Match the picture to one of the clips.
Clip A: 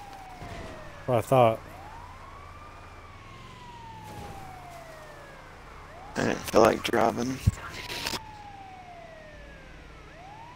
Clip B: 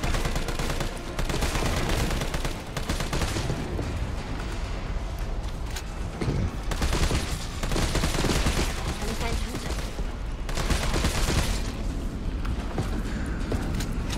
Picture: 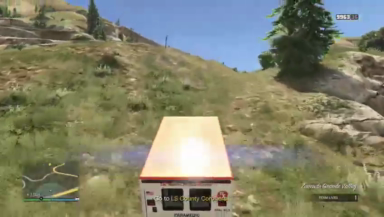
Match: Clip A